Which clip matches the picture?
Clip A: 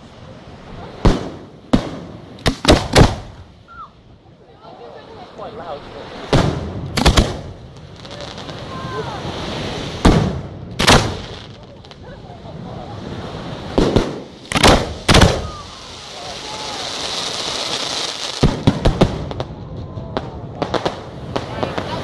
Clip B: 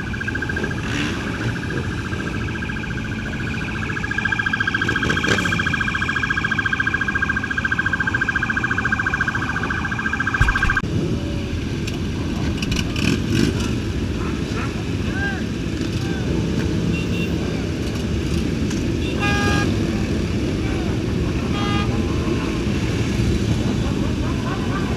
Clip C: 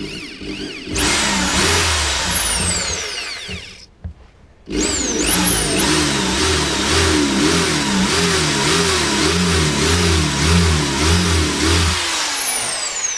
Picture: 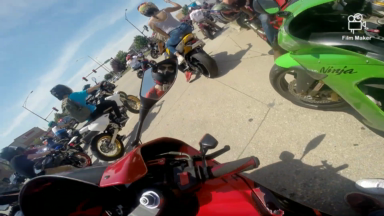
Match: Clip B